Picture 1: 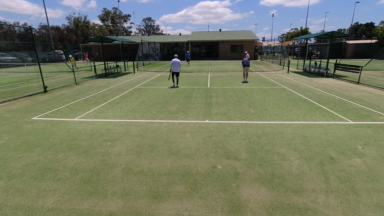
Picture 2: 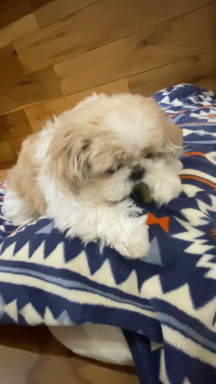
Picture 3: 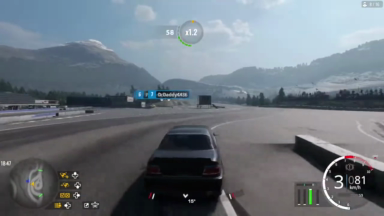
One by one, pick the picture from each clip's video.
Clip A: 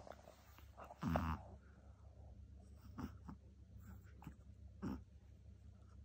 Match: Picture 2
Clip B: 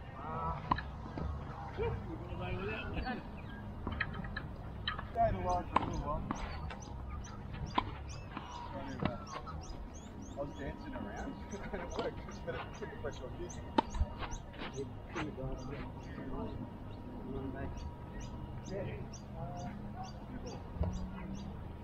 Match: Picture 1